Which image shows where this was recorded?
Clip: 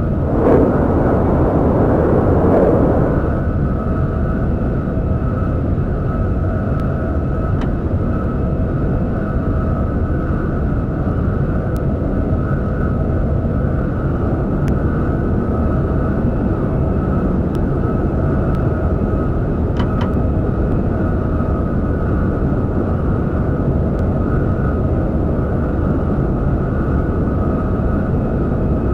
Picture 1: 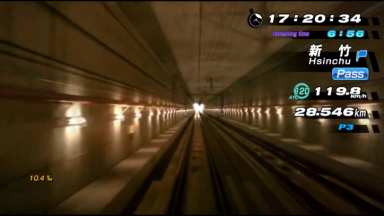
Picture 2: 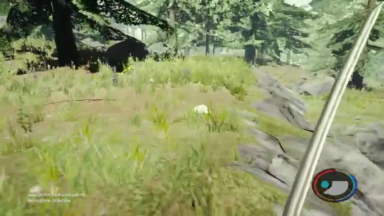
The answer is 1